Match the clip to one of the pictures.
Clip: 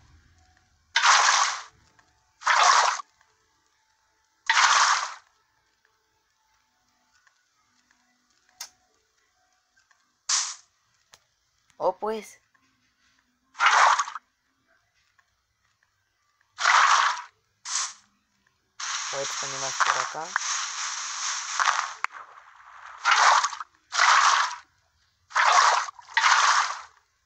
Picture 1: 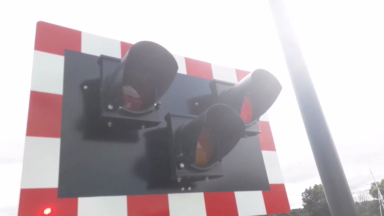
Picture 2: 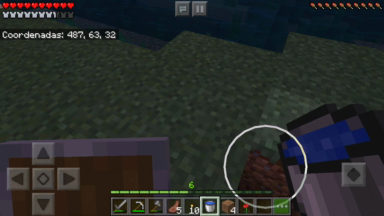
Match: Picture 2